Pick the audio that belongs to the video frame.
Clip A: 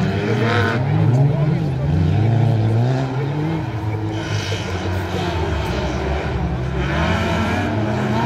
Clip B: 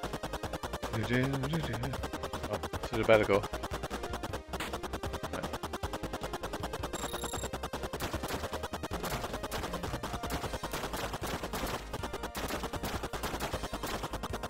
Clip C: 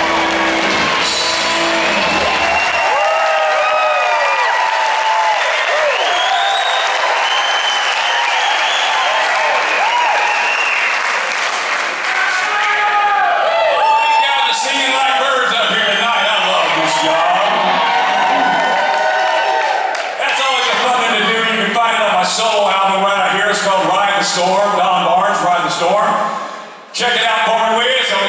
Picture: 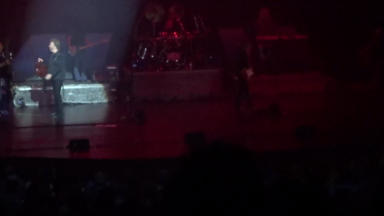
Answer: C